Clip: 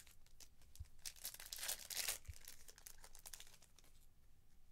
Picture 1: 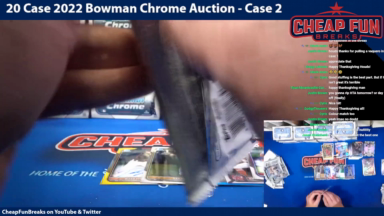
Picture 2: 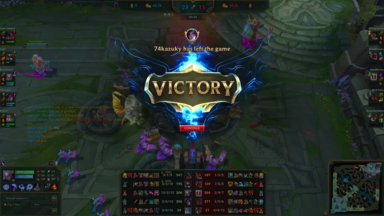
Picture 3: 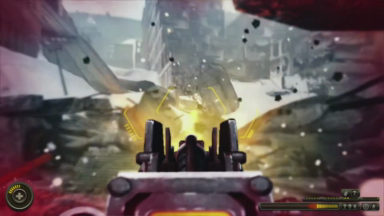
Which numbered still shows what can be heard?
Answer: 1